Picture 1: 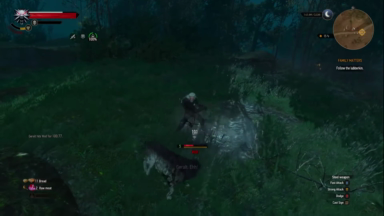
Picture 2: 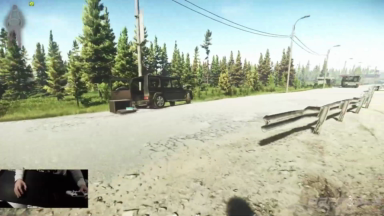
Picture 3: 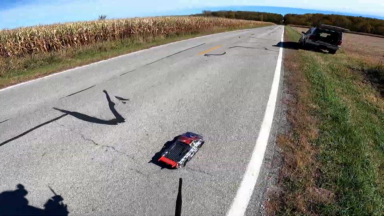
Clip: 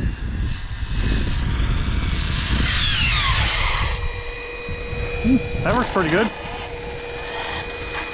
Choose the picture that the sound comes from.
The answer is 3